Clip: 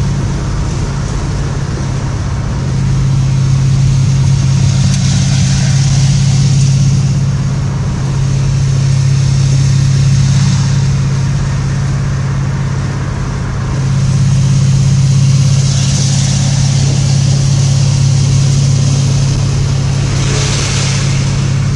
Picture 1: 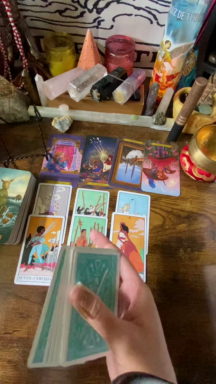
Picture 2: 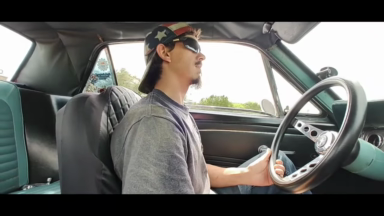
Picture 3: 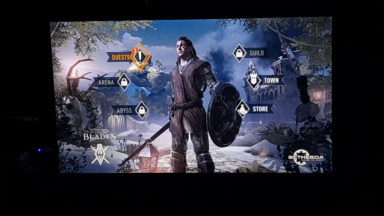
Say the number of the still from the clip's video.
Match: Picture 2